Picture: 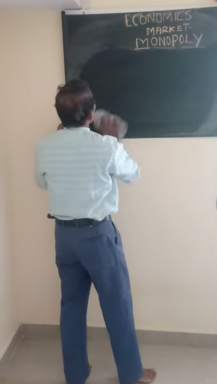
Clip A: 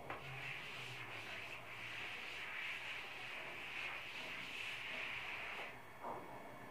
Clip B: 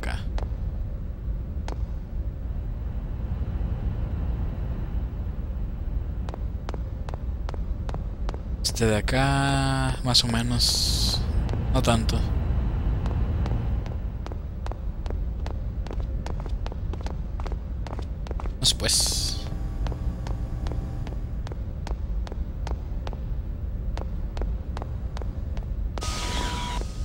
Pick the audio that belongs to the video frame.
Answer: A